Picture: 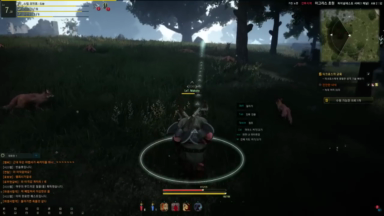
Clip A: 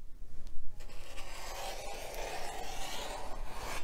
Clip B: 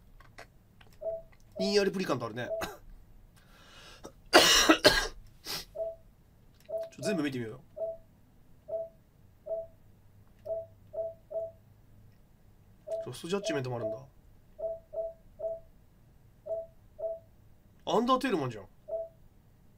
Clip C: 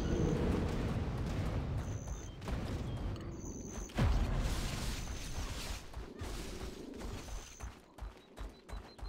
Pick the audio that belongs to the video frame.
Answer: C